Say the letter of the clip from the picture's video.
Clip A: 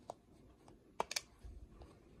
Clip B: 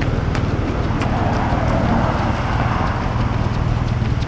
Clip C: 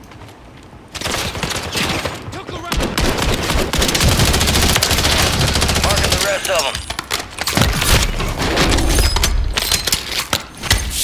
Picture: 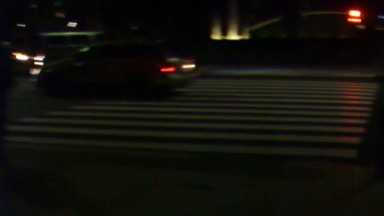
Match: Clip B